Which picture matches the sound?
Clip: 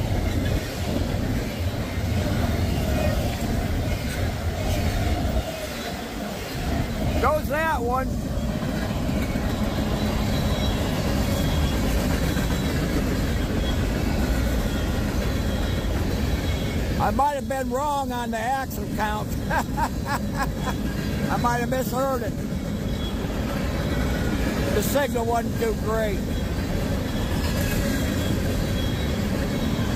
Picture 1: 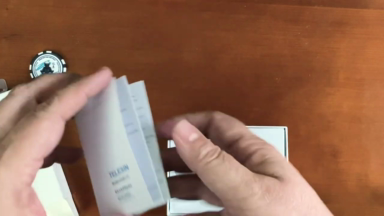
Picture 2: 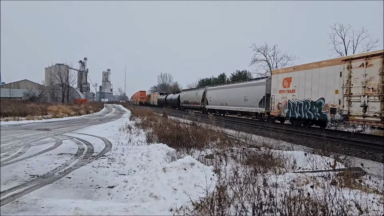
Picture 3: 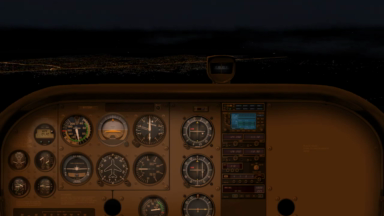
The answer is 2